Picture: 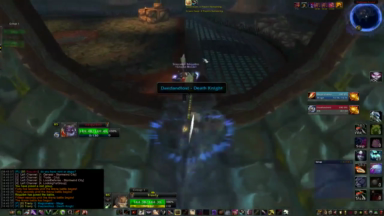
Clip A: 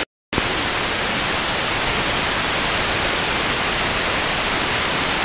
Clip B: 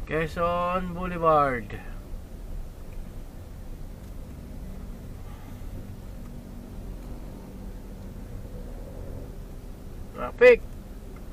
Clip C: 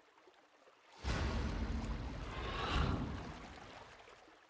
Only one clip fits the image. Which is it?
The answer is C